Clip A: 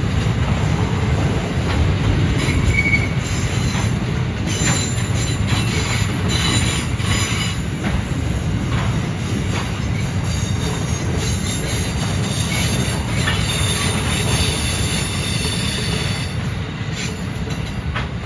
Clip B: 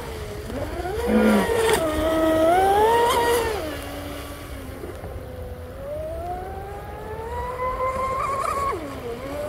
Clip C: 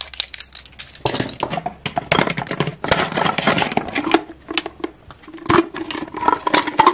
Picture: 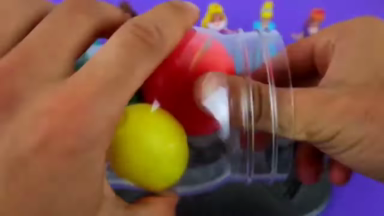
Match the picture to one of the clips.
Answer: C